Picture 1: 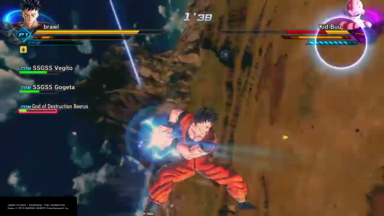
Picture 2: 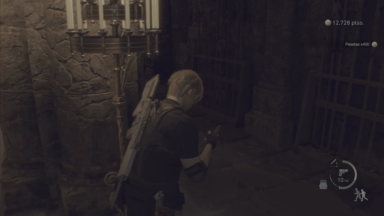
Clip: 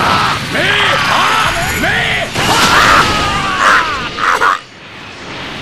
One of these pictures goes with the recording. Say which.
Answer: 1